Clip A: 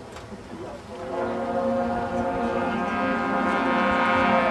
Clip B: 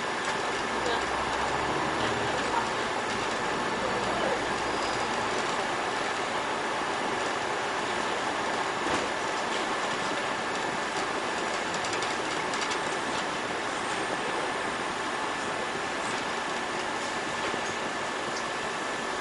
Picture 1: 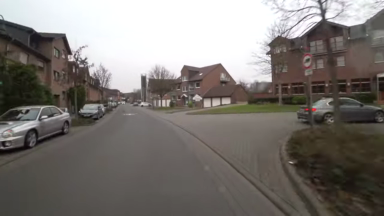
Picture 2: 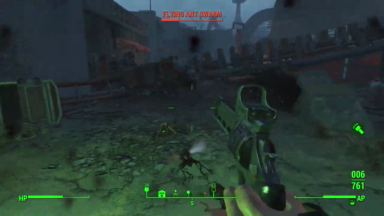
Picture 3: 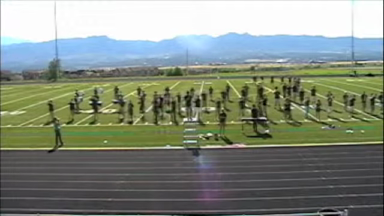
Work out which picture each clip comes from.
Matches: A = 3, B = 1